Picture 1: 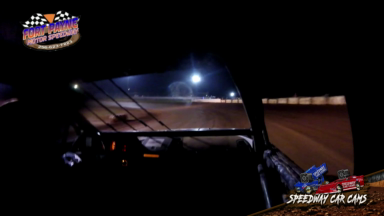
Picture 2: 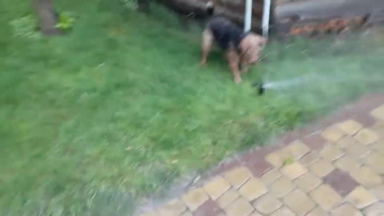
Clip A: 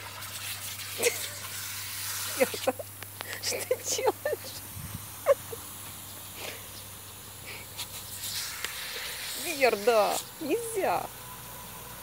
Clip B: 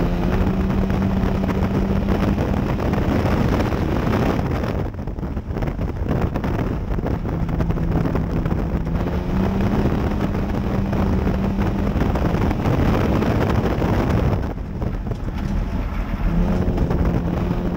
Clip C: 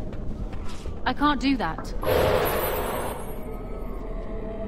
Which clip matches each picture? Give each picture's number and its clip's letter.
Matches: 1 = B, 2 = A